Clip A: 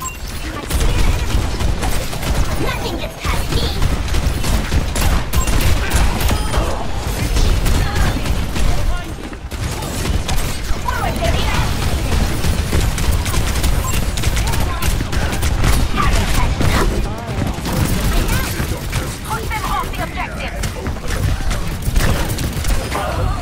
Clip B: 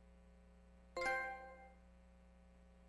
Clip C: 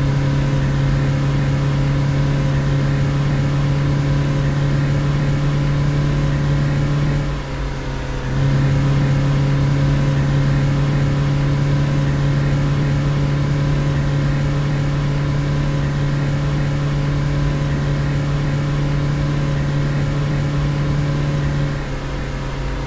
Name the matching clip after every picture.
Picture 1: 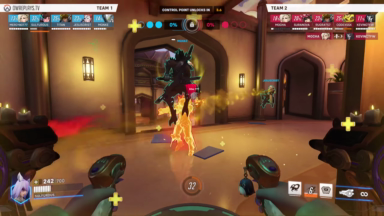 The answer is A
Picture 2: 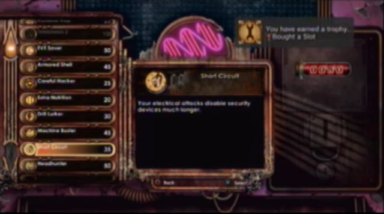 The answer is B